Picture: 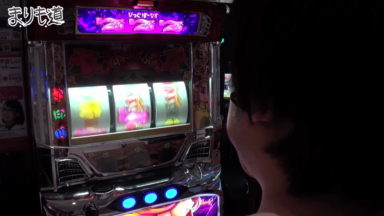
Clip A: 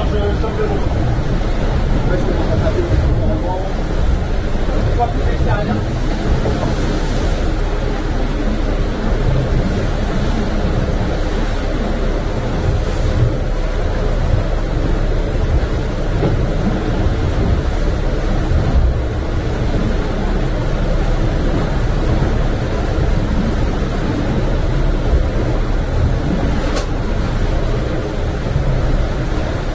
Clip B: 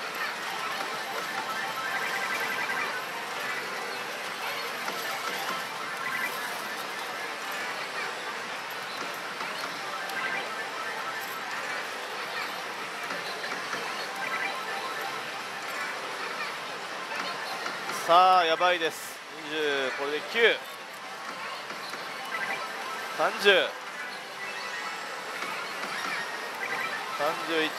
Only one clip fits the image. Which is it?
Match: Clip B